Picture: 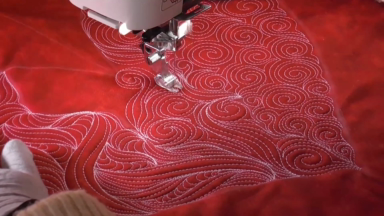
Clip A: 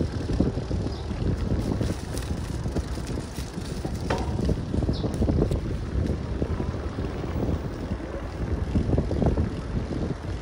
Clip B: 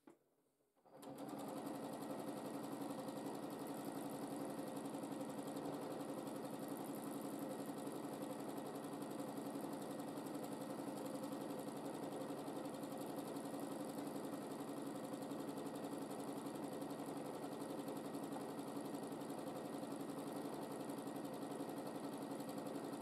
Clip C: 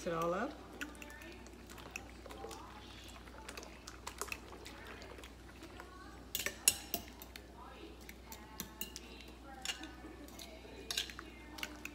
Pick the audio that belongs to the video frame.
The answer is B